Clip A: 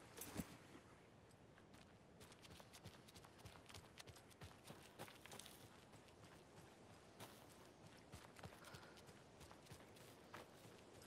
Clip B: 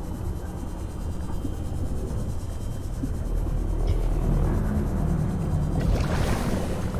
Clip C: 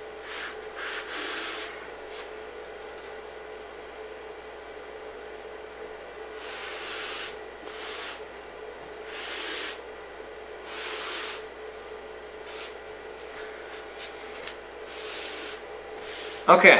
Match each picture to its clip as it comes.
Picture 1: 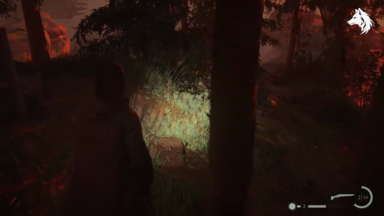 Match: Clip A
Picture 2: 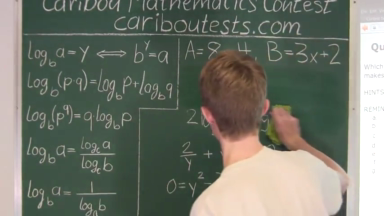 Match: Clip C